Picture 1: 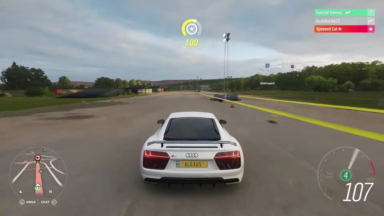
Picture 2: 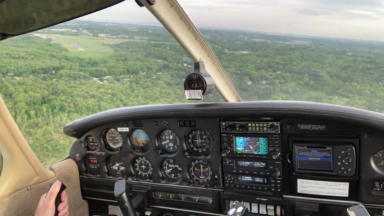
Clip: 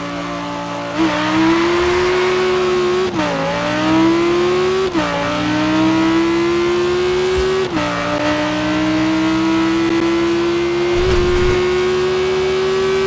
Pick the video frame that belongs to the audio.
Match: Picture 1